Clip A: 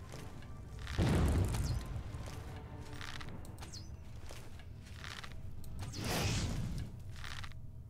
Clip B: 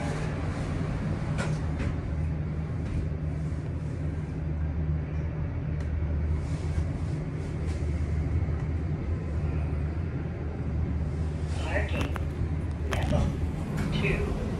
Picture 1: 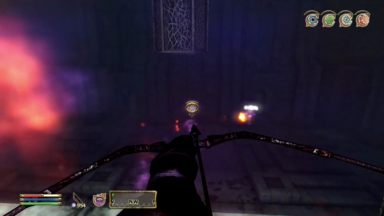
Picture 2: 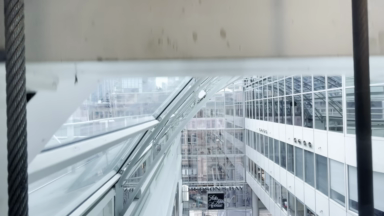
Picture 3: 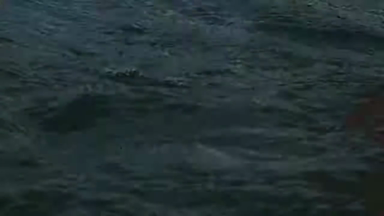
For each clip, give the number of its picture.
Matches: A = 1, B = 2